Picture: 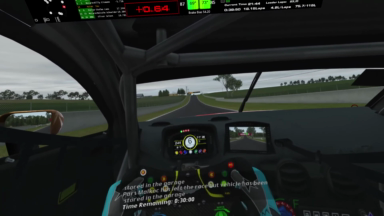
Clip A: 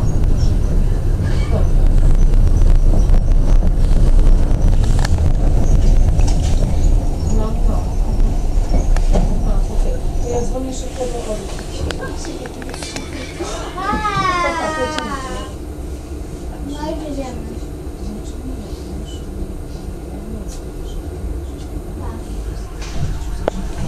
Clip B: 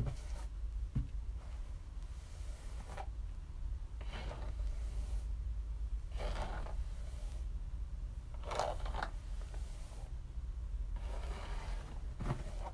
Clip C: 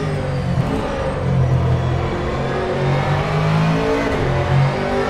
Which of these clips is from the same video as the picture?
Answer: C